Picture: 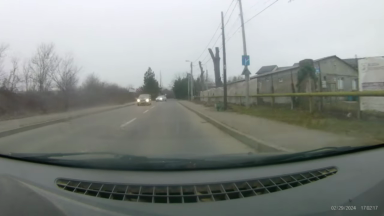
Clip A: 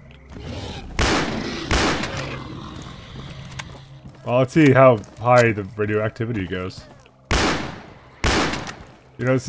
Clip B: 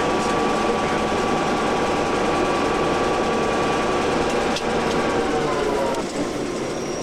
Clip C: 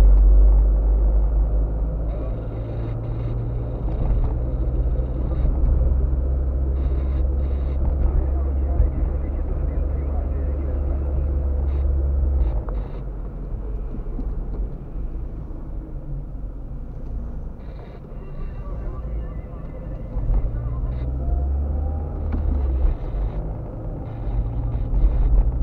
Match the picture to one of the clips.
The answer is C